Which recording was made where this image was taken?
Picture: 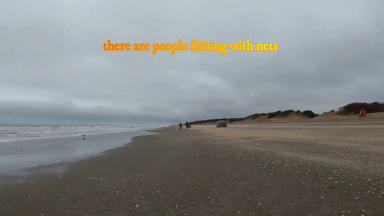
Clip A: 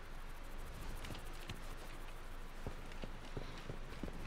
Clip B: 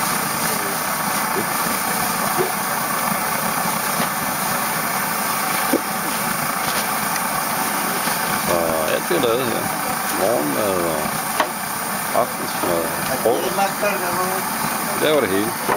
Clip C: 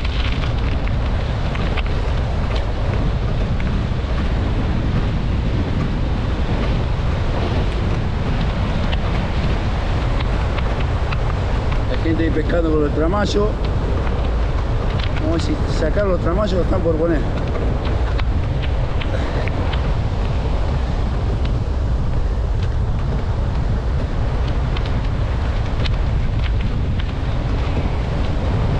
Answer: C